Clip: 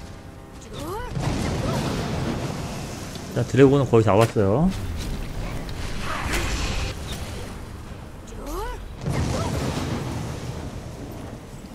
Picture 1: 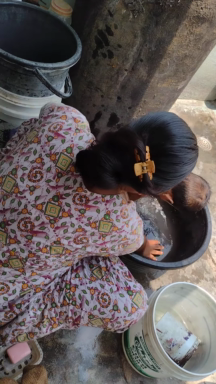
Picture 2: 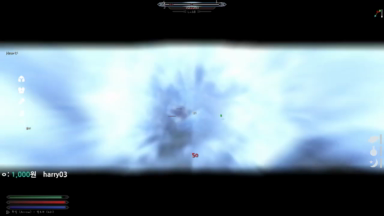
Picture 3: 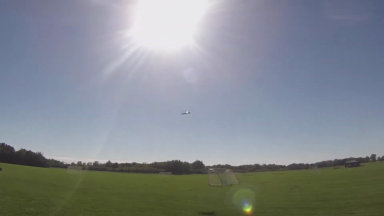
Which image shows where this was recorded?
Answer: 2